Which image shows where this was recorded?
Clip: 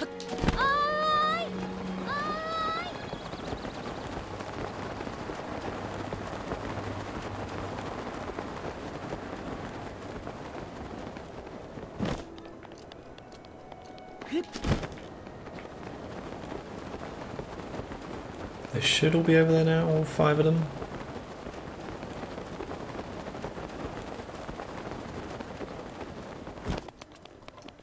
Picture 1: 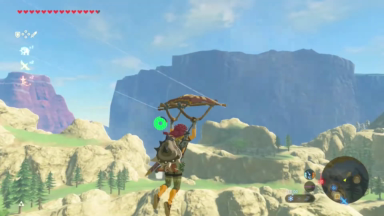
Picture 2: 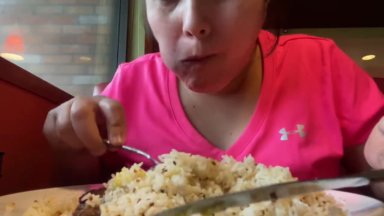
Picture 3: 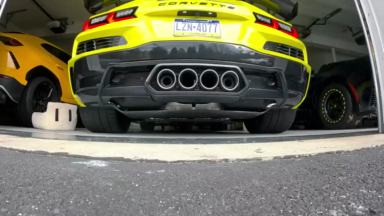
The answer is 1